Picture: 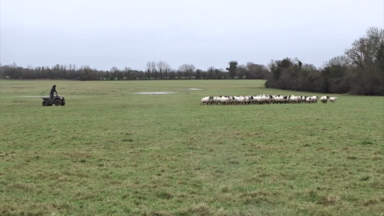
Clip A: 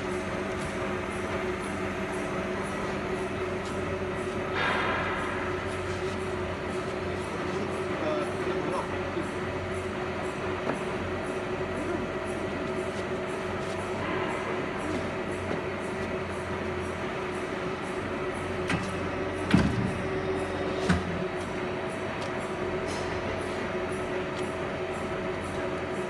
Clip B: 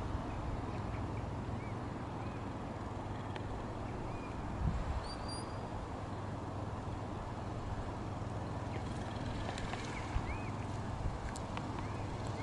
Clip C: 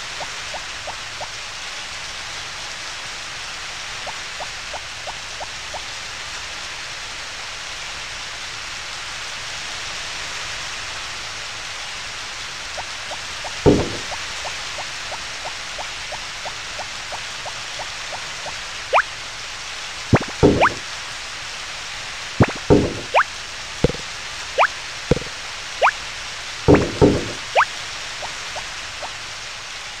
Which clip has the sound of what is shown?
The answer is B